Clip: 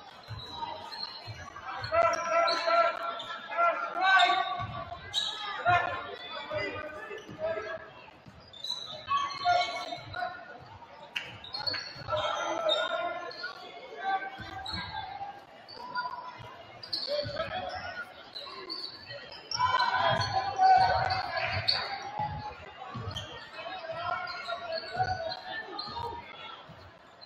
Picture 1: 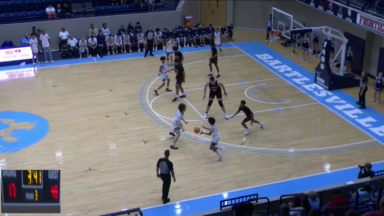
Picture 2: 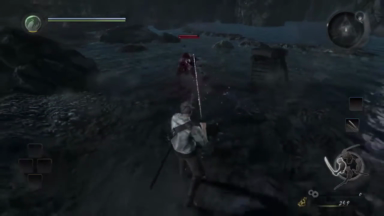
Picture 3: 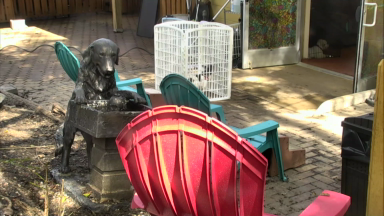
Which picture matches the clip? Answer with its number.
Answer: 1